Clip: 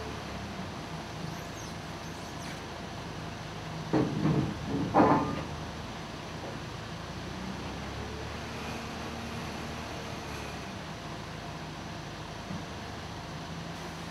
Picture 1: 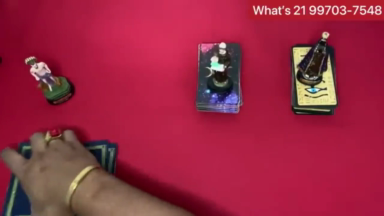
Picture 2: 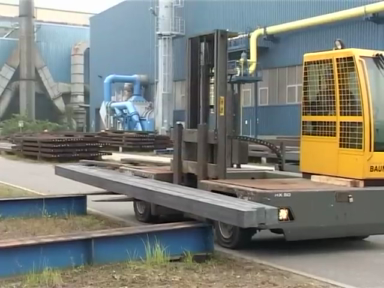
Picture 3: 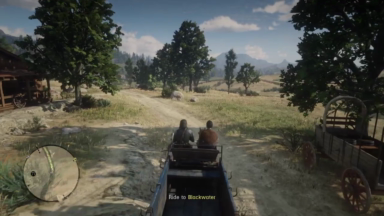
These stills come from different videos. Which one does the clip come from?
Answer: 2